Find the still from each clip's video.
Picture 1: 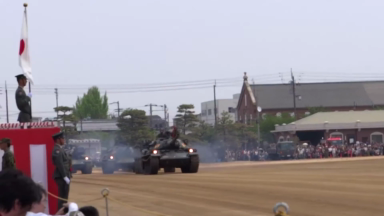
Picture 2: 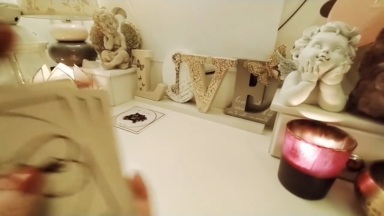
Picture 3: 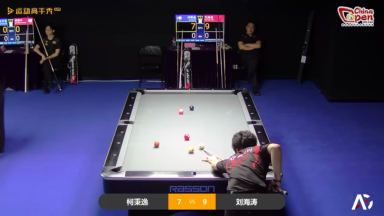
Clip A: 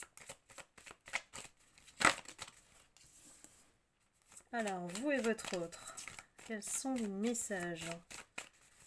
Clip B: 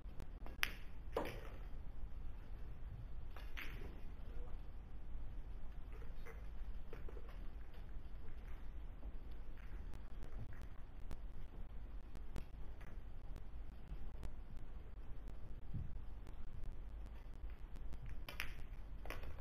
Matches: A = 2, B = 3